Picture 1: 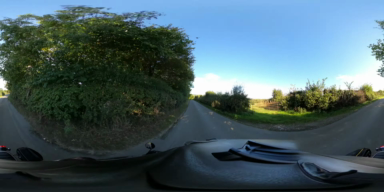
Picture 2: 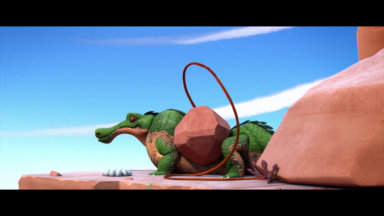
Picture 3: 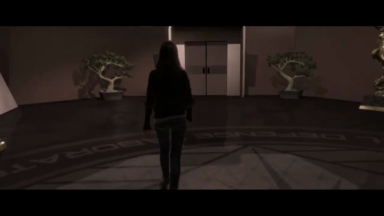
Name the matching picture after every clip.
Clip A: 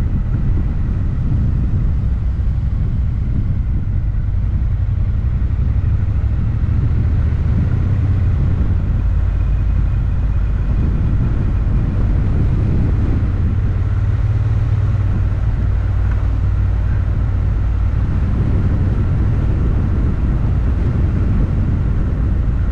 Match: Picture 1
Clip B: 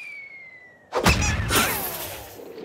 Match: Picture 2